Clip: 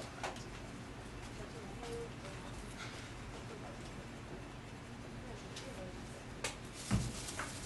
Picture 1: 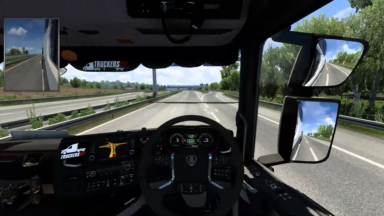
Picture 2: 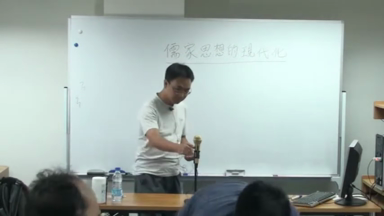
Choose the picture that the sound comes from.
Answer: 2